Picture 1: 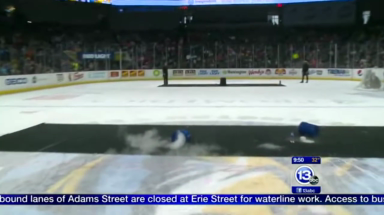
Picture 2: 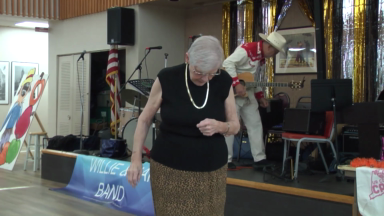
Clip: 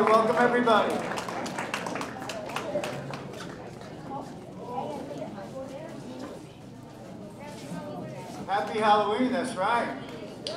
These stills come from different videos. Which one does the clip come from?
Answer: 2